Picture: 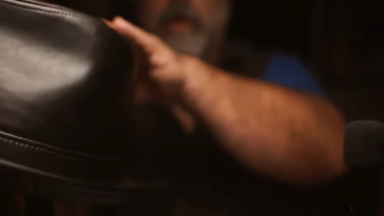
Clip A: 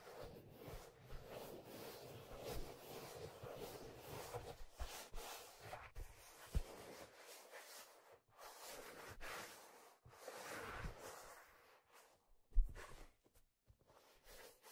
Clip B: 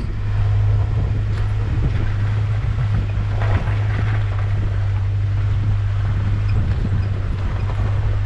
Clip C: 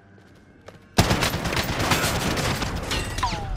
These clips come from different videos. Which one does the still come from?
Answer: A